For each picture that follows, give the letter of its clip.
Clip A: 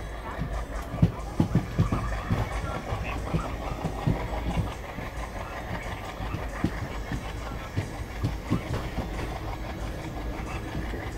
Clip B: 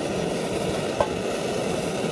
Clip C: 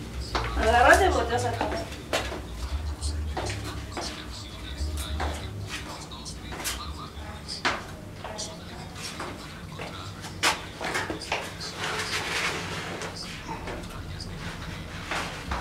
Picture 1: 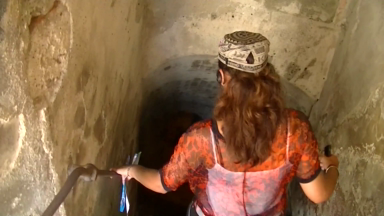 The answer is C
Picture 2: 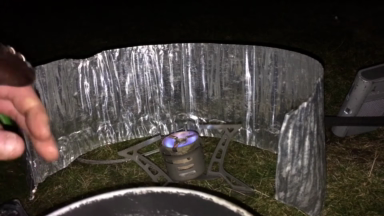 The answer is B